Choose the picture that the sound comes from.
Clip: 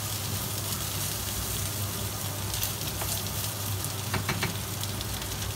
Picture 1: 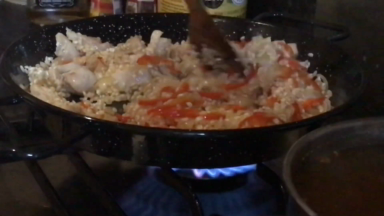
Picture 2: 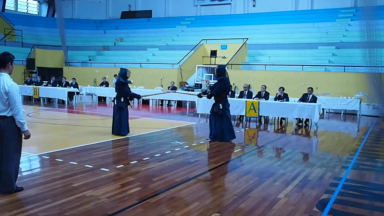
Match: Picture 1